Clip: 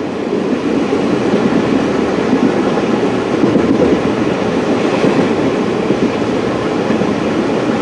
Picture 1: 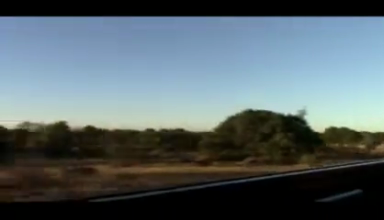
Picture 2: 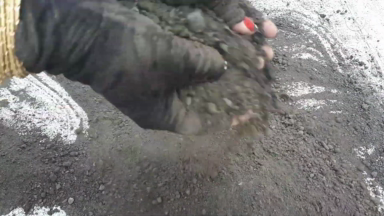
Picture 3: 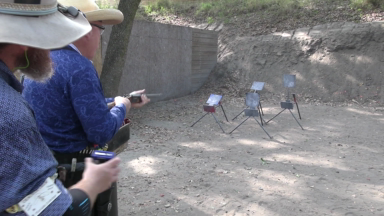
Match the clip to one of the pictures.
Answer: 1